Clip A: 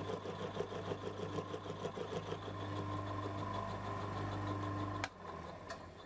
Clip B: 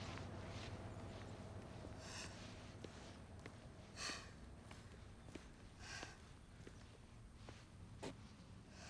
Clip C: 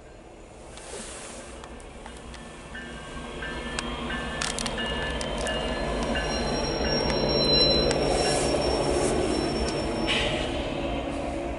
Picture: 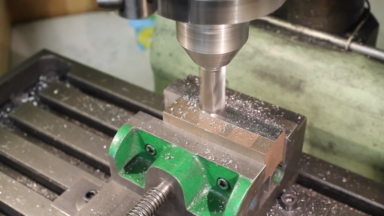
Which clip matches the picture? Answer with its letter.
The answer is A